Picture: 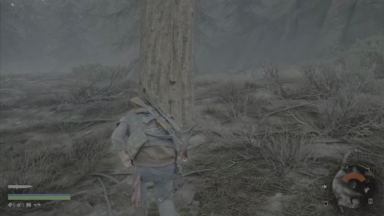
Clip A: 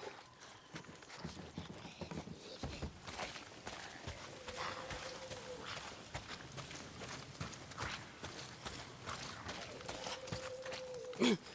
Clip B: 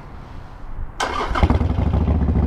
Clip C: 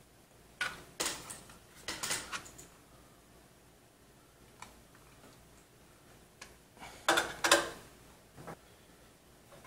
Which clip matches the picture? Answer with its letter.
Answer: A